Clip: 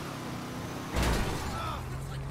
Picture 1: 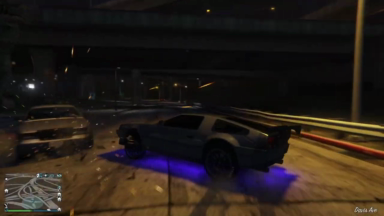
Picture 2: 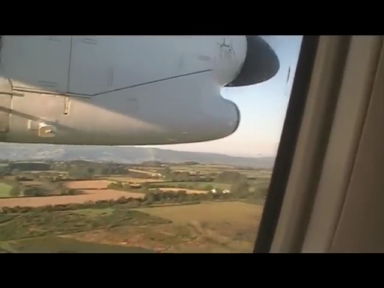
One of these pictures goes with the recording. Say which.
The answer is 1